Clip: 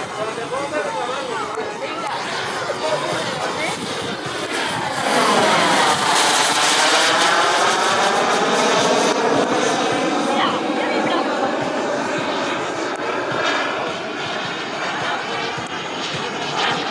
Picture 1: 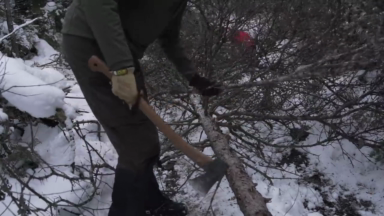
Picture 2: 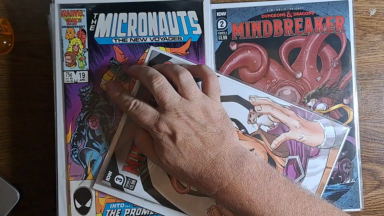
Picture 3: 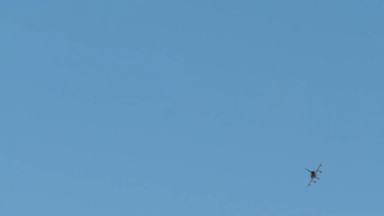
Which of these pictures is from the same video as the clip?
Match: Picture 3